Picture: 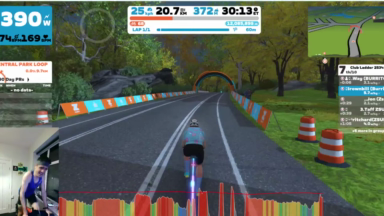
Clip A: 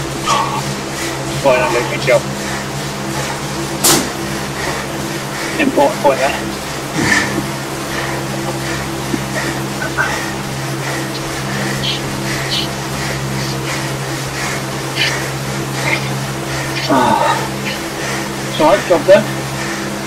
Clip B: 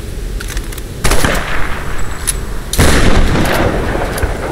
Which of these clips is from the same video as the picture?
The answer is A